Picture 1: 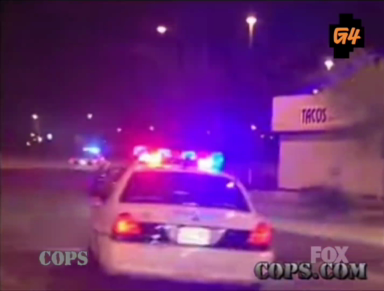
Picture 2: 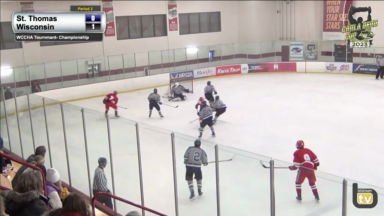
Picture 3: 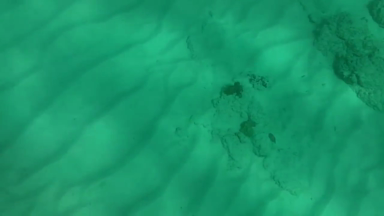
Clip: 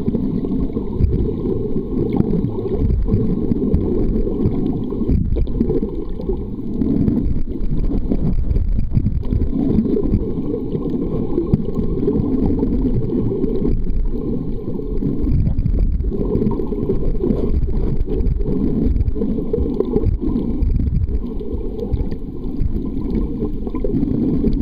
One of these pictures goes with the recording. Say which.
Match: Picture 3